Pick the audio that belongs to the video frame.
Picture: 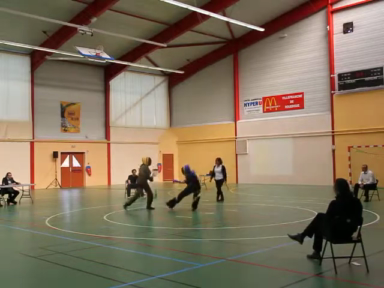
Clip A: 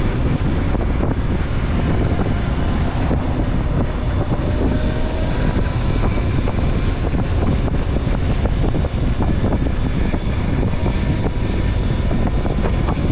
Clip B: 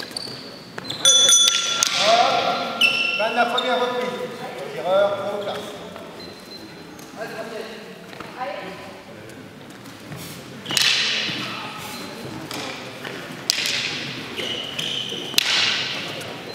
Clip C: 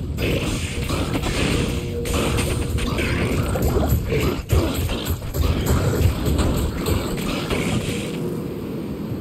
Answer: B